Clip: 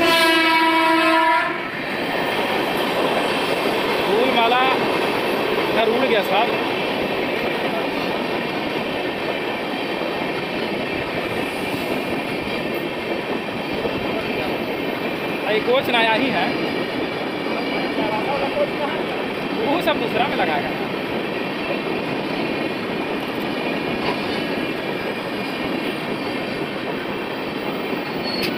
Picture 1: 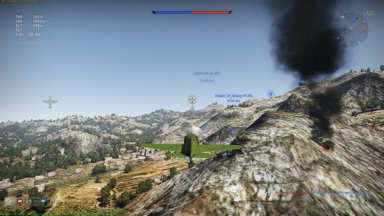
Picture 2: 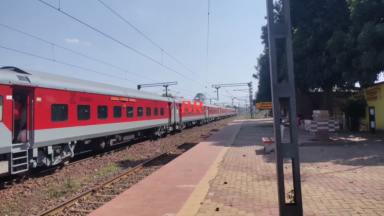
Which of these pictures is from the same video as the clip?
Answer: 2